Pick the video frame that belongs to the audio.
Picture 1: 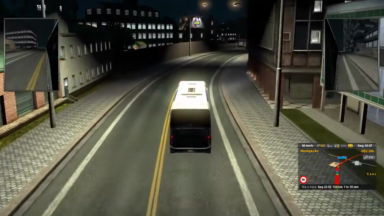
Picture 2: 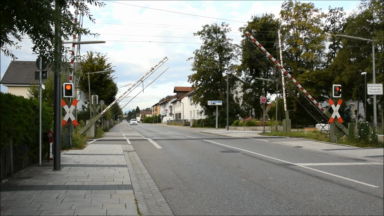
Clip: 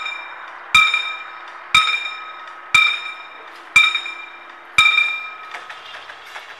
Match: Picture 2